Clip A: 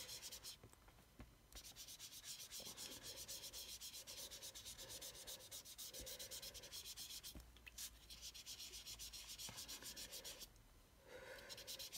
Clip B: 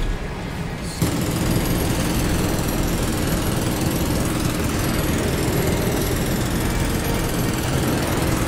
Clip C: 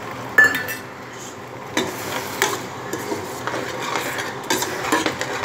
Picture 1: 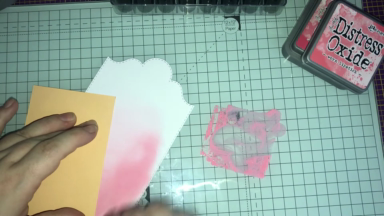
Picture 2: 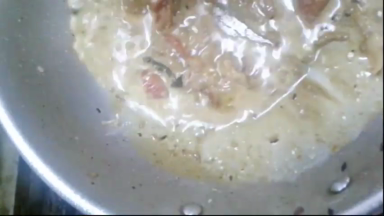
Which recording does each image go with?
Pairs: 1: A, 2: C